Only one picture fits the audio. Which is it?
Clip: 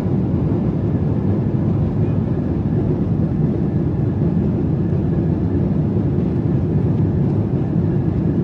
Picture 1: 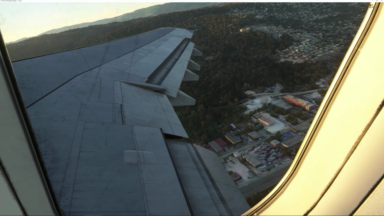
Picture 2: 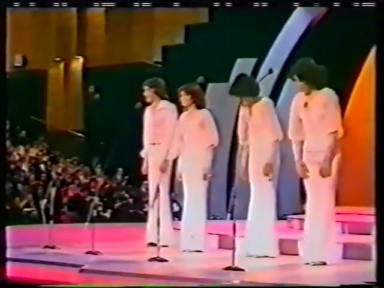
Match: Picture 1